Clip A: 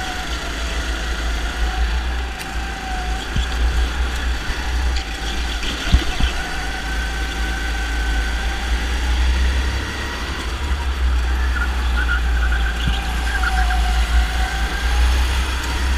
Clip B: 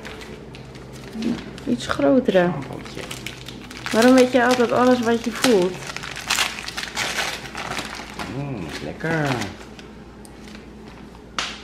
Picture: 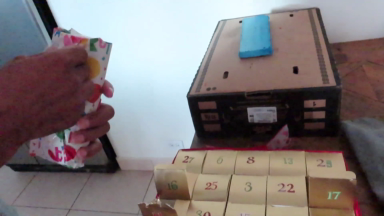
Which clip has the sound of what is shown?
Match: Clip B